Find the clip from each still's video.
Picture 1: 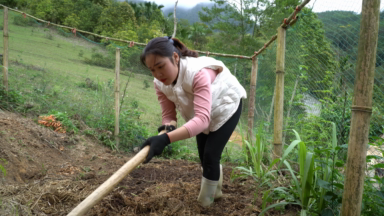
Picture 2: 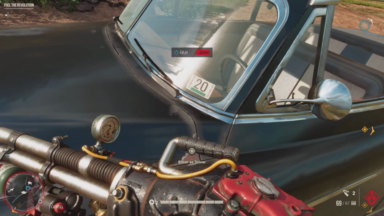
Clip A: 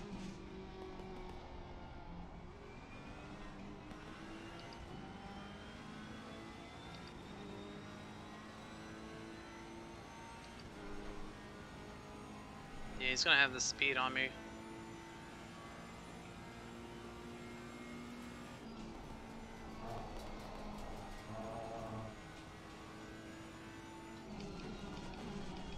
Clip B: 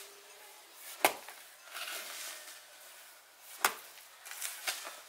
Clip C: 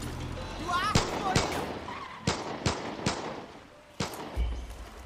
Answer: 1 B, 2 C